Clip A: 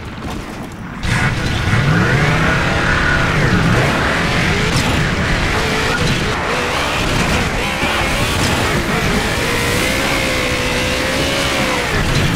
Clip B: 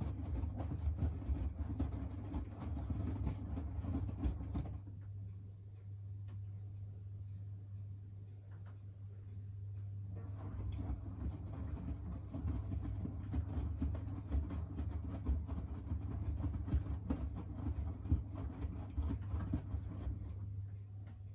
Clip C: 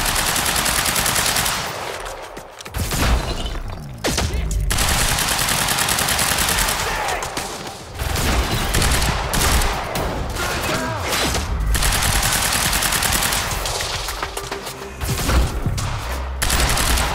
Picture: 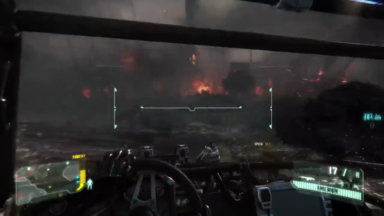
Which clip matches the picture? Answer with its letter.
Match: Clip A